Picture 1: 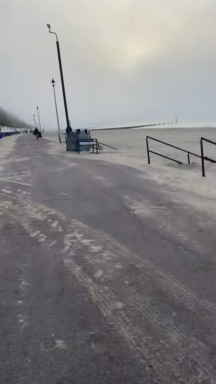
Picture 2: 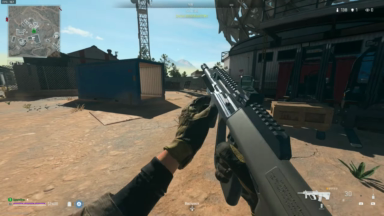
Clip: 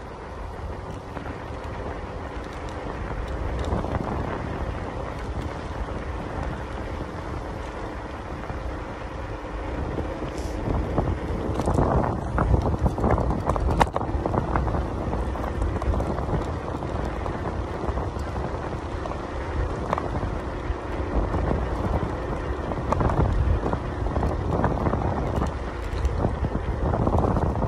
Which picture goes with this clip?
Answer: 1